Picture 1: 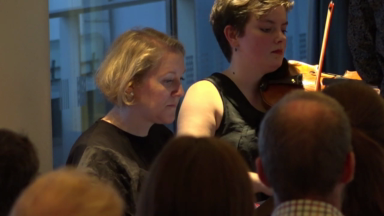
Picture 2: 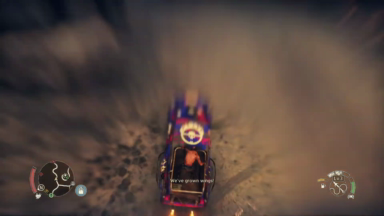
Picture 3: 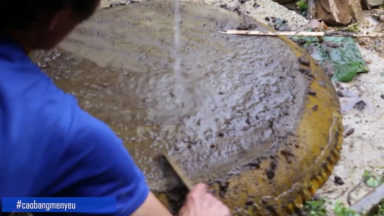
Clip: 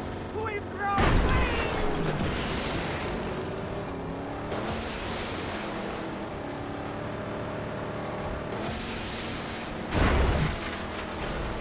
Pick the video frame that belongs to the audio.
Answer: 2